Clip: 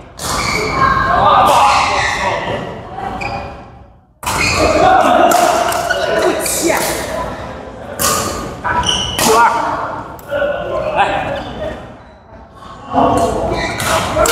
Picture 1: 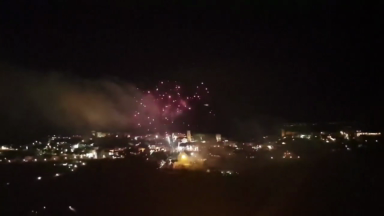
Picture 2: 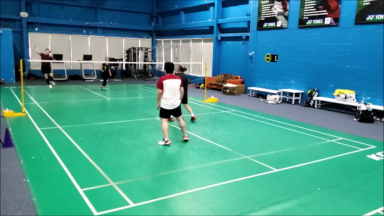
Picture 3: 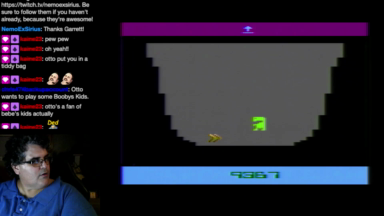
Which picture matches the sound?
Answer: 2